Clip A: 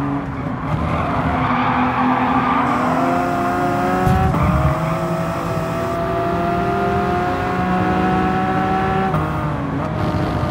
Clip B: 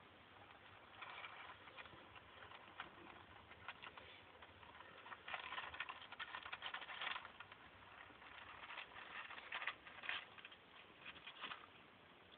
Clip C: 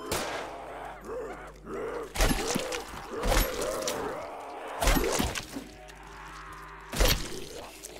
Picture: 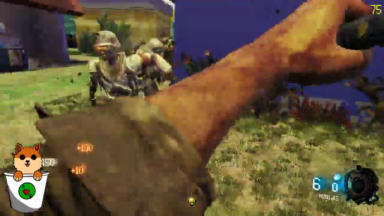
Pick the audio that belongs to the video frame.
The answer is C